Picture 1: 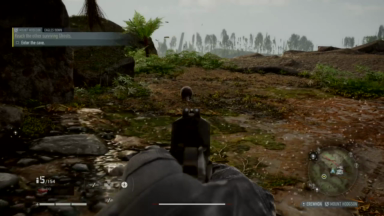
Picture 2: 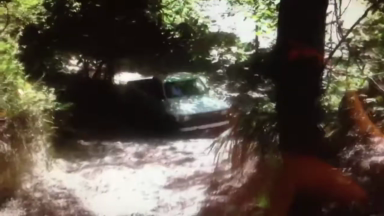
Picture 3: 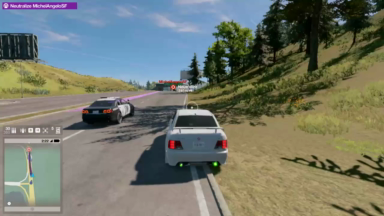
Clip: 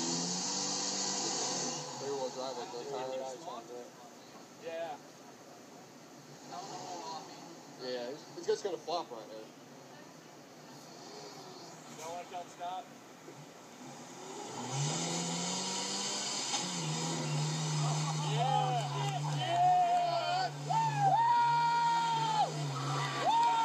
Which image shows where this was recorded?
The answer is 2